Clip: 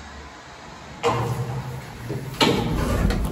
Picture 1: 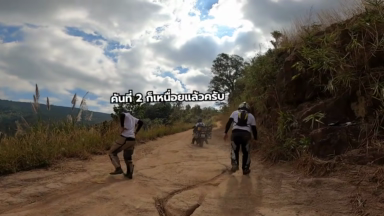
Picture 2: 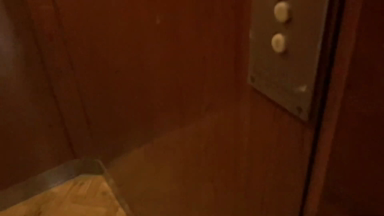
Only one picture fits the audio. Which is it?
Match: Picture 2